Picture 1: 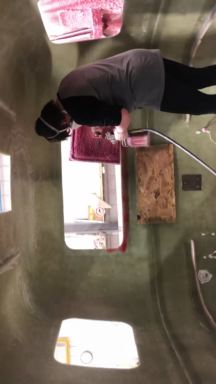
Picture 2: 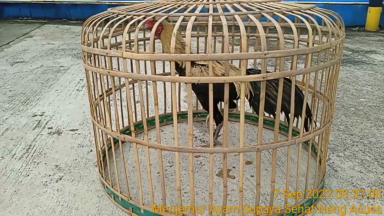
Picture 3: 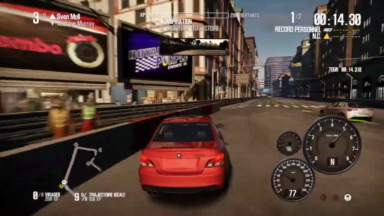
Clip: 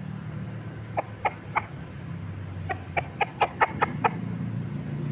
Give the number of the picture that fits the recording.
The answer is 2